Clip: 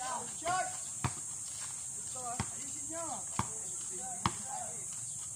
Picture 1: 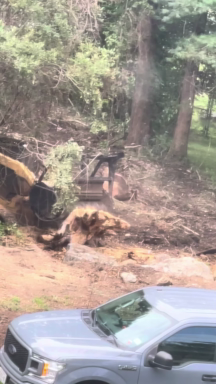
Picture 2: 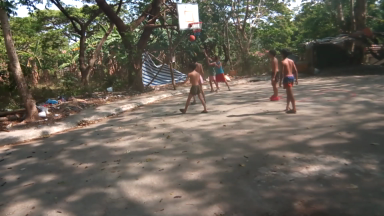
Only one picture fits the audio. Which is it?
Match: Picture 2